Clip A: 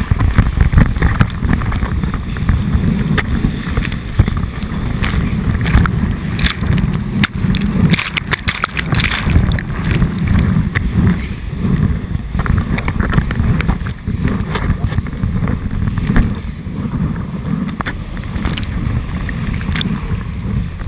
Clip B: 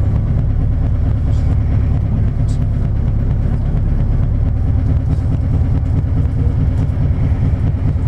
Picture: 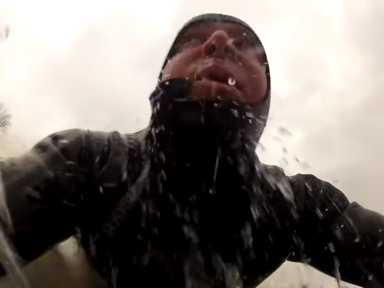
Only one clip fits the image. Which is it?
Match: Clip A